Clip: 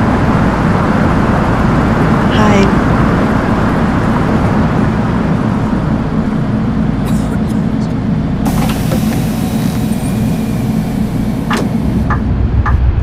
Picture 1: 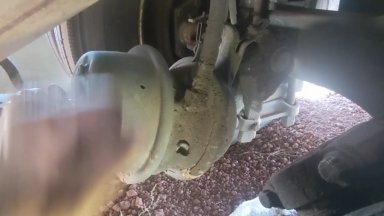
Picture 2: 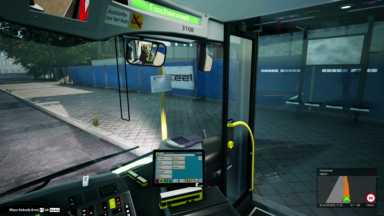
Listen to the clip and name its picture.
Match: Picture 2